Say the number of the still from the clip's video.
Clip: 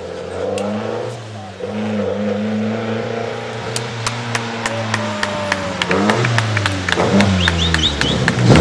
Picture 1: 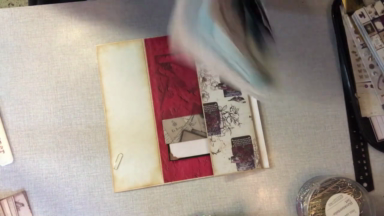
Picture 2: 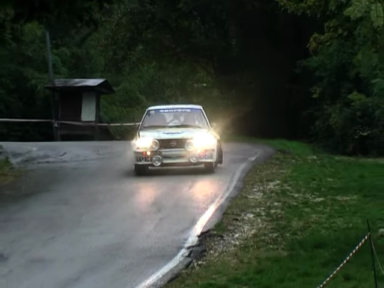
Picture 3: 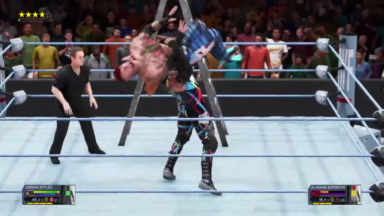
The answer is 2